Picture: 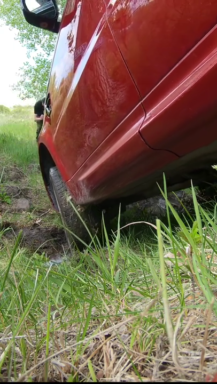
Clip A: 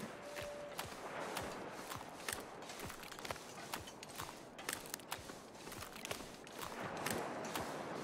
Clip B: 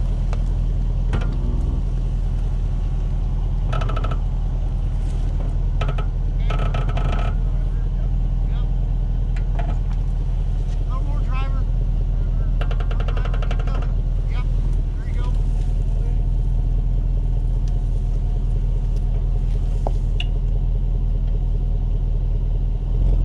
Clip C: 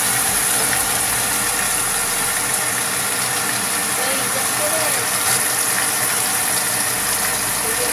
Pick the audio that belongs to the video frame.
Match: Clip B